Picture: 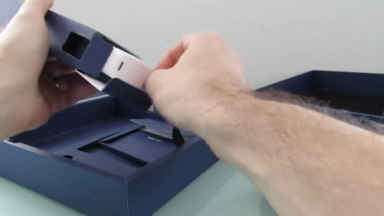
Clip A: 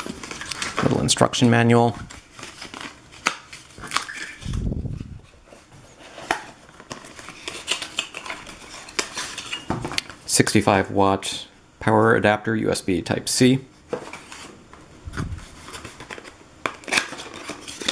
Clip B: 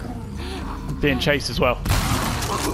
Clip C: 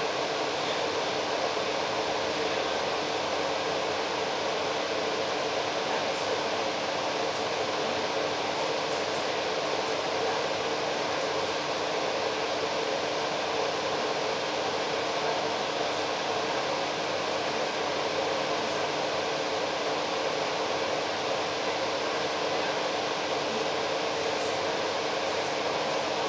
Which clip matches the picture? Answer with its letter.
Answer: A